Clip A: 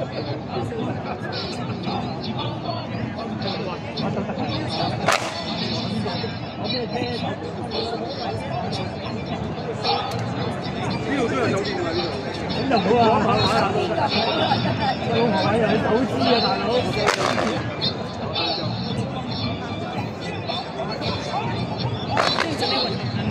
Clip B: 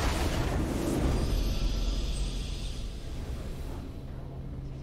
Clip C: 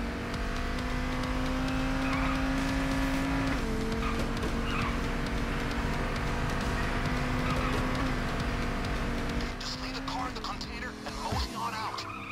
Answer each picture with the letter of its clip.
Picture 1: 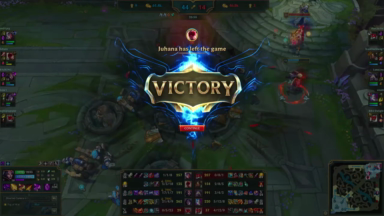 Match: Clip B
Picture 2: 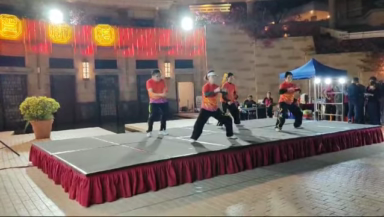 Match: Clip A